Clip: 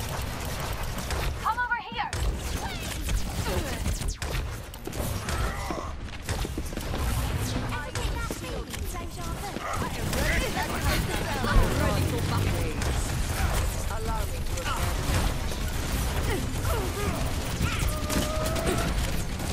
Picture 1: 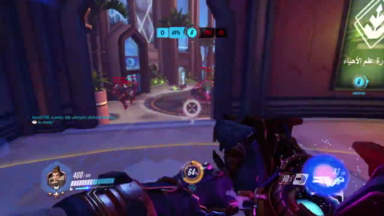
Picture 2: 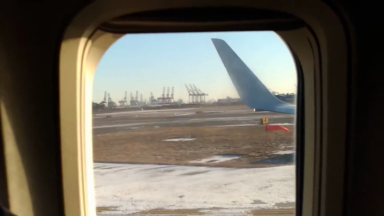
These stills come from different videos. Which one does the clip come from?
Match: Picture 1